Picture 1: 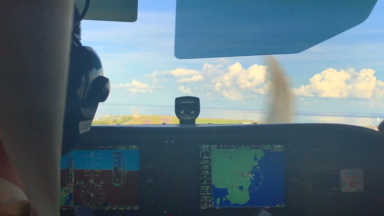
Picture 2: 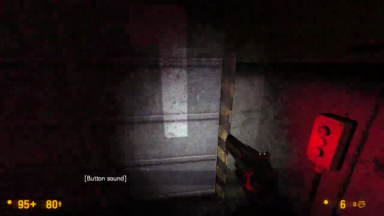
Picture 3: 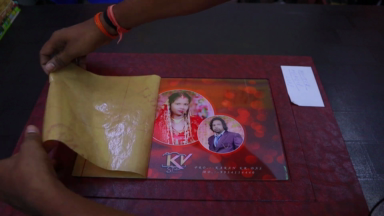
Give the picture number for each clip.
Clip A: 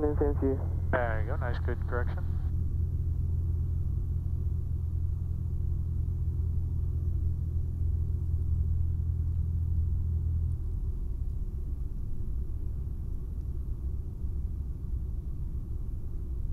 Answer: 1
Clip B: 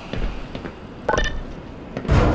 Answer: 2